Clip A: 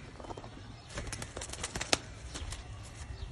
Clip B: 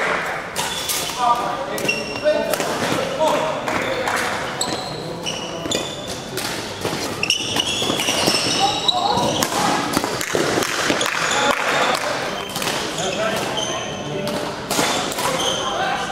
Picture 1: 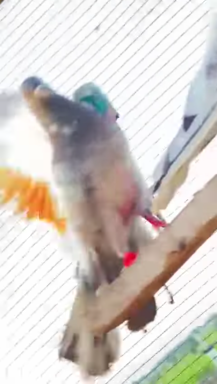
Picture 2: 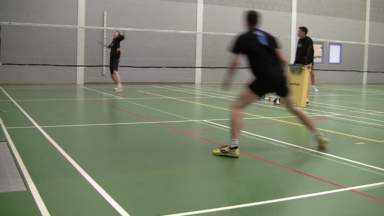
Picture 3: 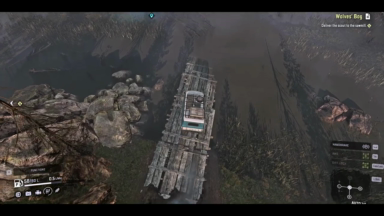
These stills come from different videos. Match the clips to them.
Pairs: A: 1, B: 2